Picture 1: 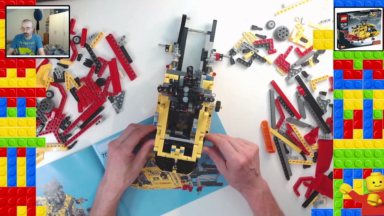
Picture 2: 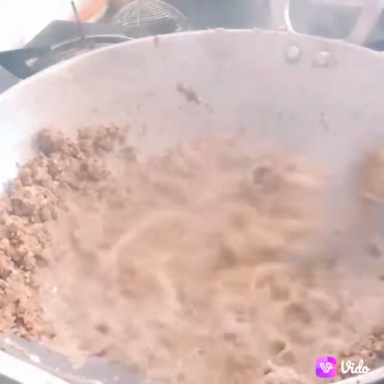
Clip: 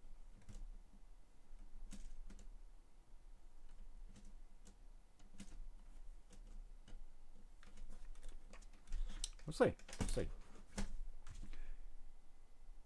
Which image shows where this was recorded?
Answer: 1